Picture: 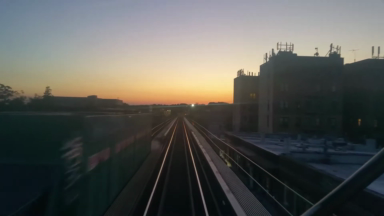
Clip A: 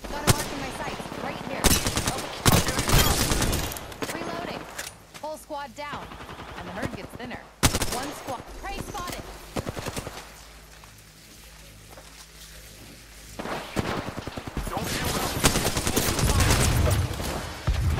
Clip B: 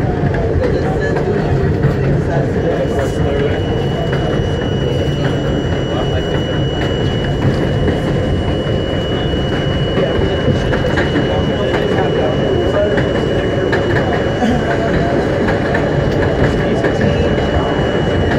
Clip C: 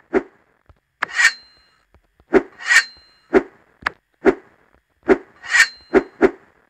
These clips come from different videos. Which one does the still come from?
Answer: B